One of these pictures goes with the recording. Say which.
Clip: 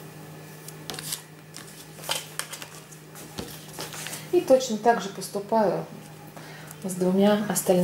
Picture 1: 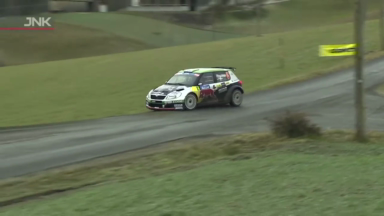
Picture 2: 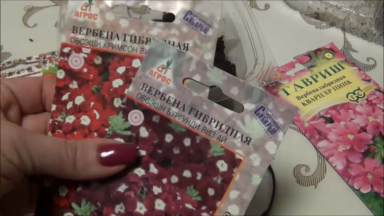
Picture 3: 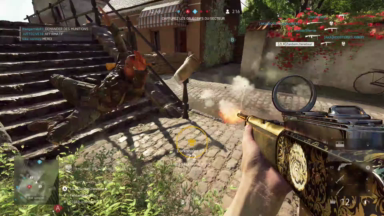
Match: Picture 2